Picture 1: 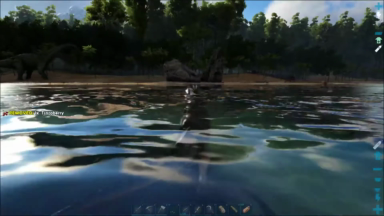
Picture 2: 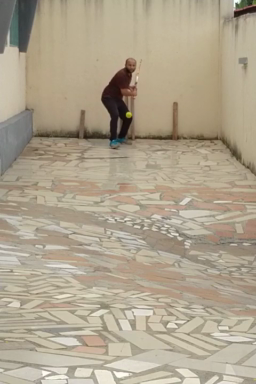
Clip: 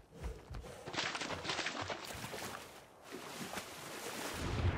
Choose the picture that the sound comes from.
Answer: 1